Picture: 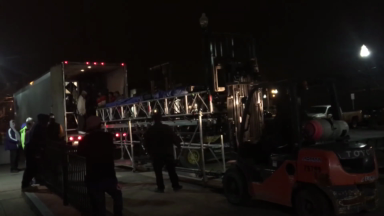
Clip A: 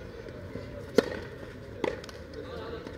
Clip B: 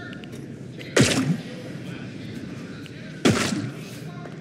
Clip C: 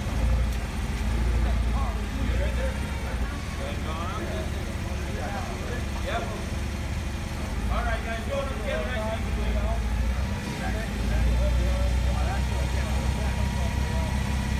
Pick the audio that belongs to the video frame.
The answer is C